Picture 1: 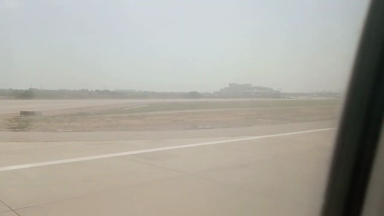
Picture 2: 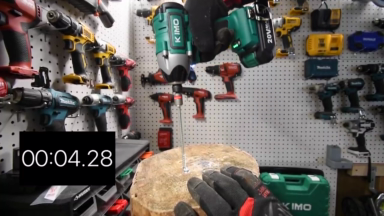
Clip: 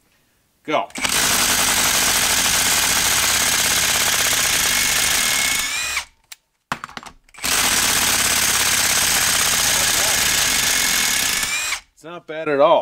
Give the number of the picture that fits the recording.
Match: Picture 2